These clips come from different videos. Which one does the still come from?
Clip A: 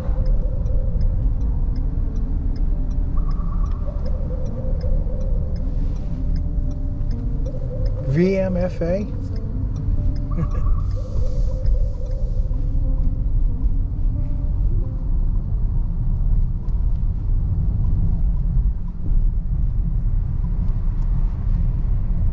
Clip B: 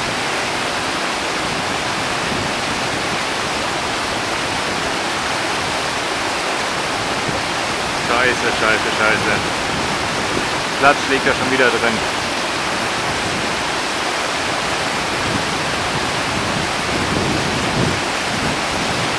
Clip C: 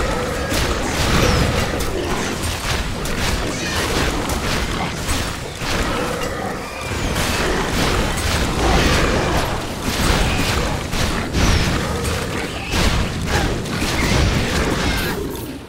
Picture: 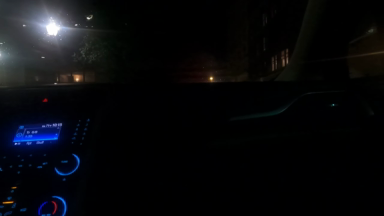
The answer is A